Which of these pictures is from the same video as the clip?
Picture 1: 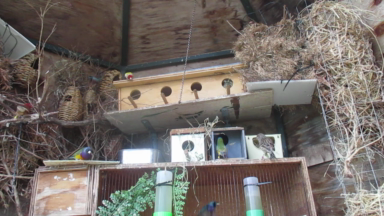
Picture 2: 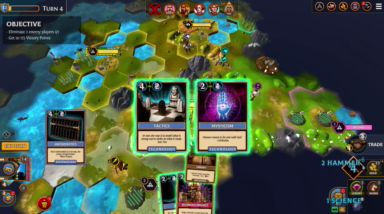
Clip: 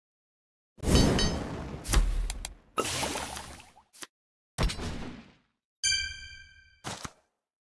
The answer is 2